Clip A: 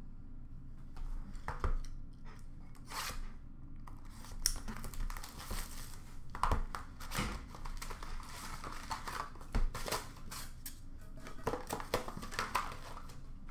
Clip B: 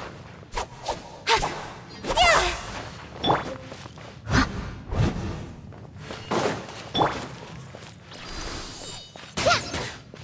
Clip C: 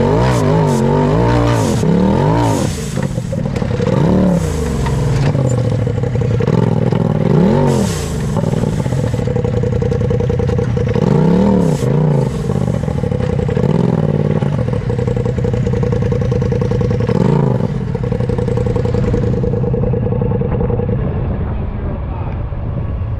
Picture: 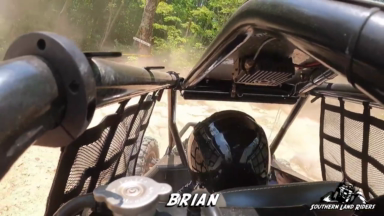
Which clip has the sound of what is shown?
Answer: C